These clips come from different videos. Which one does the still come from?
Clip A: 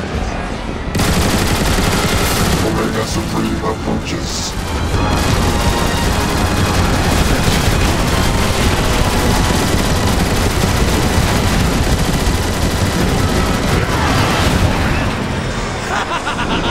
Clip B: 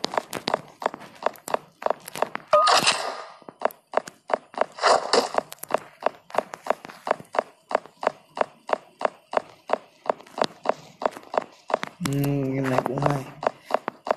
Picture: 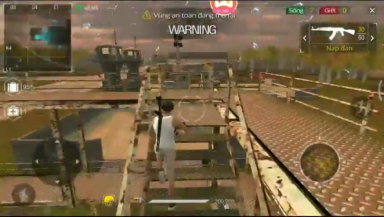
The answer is B